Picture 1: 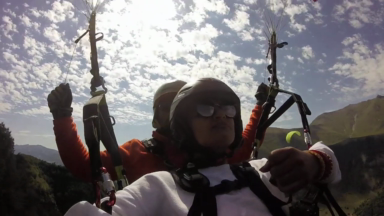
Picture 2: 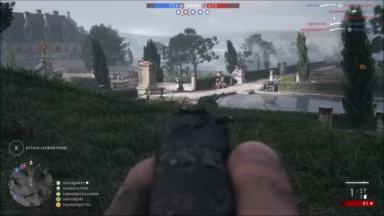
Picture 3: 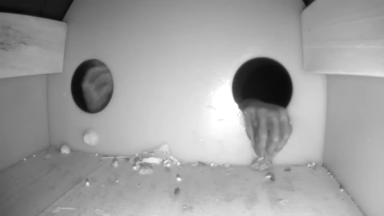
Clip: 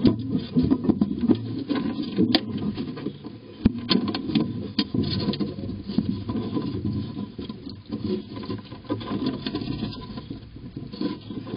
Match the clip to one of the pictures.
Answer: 3